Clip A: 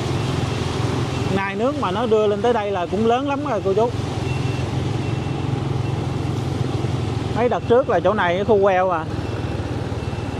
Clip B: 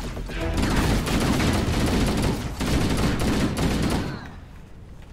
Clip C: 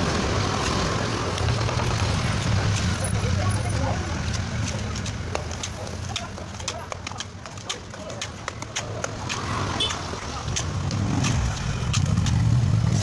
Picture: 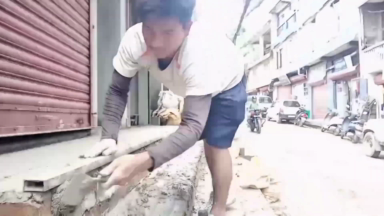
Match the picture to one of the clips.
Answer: C